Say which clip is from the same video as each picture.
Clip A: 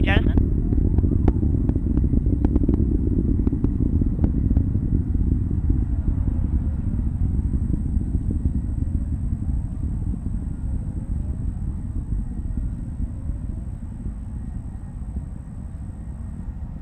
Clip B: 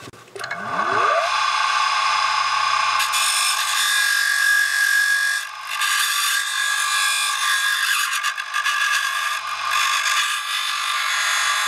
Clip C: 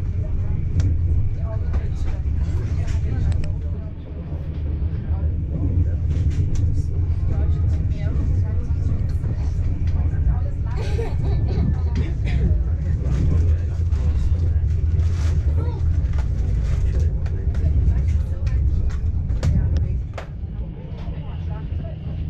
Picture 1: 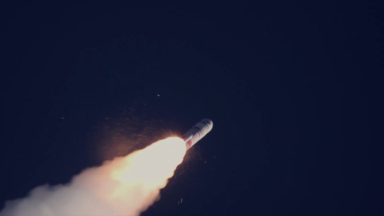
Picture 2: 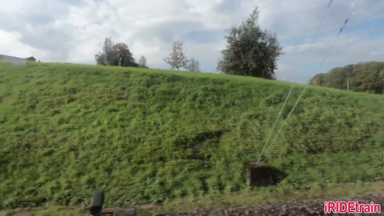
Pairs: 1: A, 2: C